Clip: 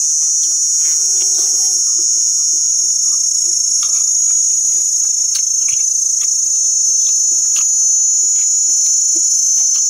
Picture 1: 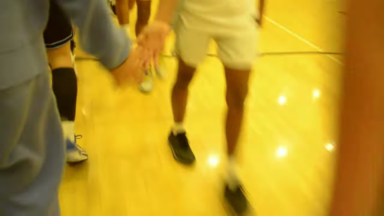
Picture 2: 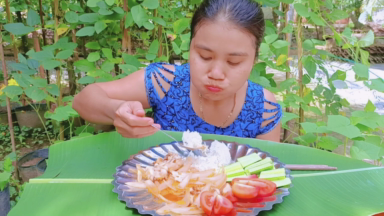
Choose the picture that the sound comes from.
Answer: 2